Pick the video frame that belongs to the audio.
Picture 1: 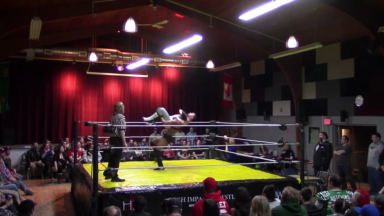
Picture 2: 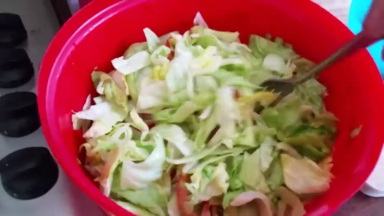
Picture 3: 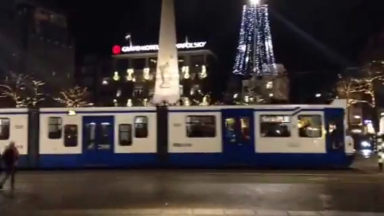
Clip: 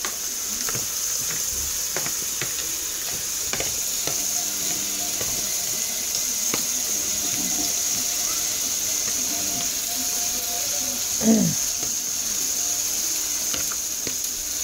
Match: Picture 2